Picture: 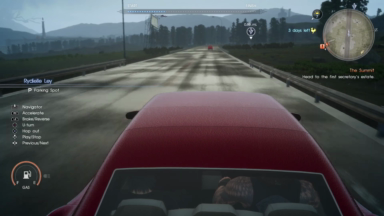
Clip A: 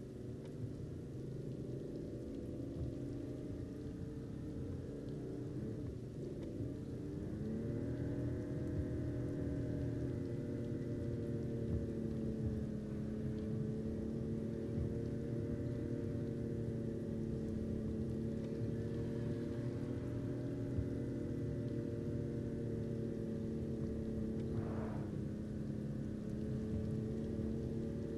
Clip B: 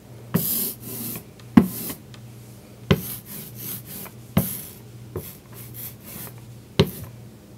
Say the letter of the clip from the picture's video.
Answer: A